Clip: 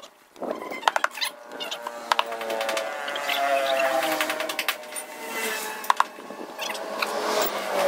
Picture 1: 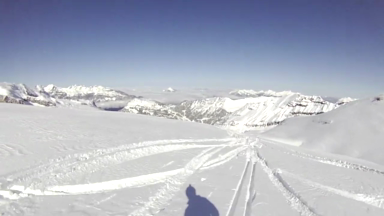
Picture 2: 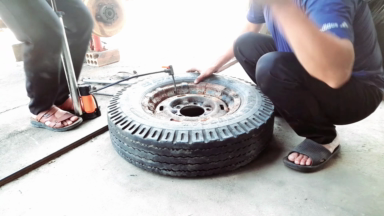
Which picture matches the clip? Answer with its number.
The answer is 2